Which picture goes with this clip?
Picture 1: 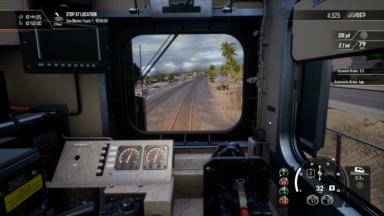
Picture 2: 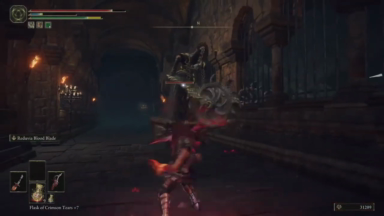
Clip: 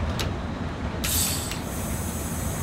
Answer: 1